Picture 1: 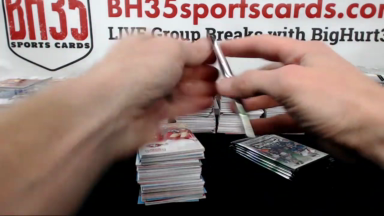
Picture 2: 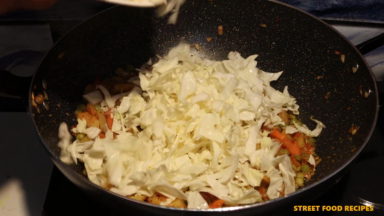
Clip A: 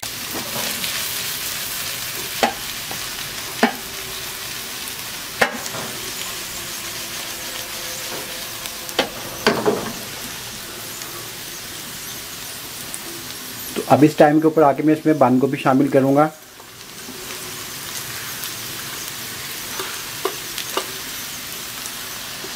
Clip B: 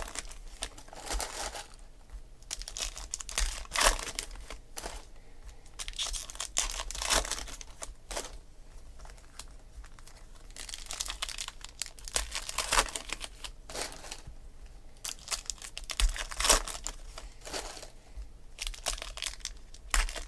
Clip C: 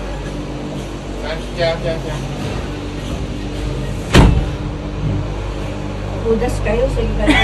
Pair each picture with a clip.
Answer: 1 B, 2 A